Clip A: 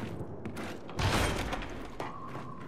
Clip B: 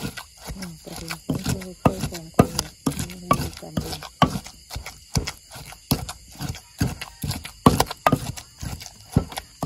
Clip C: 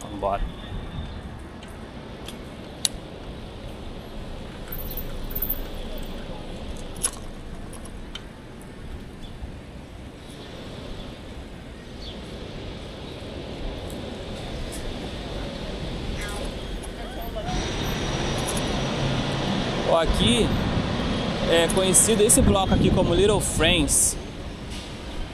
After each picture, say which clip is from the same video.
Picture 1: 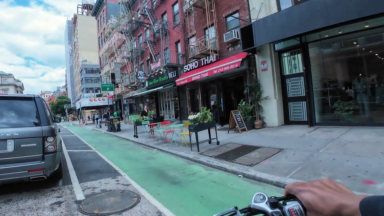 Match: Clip C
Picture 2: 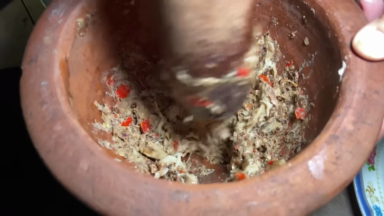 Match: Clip B